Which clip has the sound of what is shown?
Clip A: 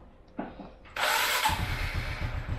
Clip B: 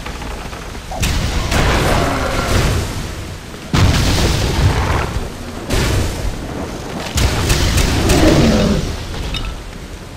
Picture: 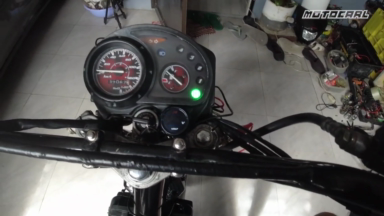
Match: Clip A